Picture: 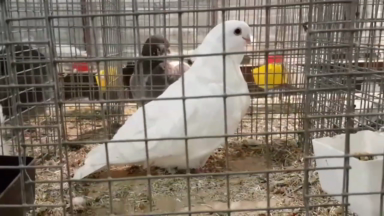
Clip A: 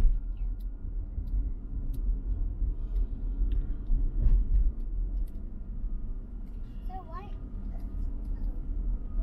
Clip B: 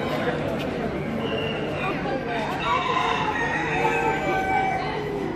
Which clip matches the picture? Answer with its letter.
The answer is B